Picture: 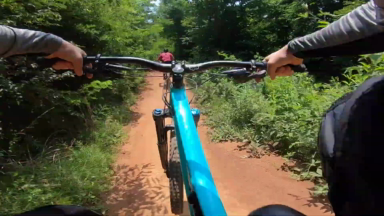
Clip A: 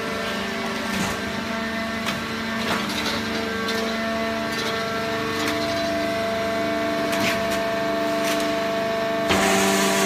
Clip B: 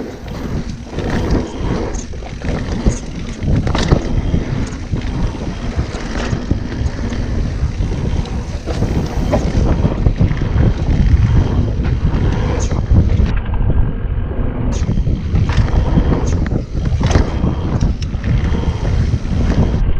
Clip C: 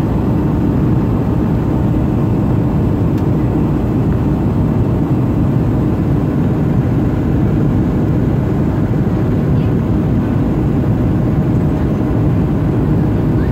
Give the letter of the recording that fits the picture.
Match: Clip B